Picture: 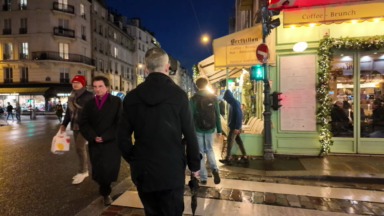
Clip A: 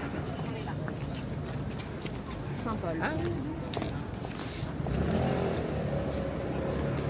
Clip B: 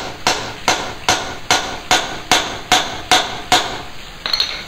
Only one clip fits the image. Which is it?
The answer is A